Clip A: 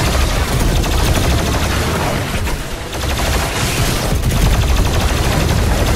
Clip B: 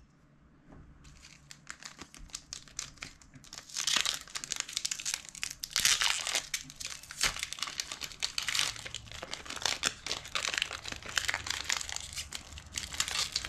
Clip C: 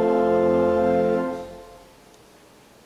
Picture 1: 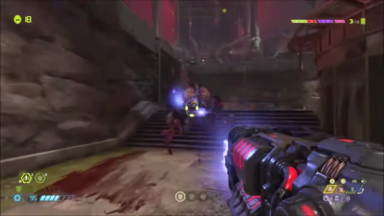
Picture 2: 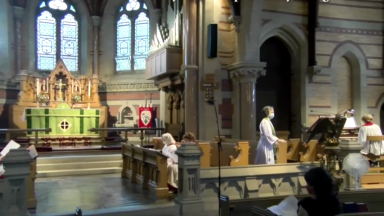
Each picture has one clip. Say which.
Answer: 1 A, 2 C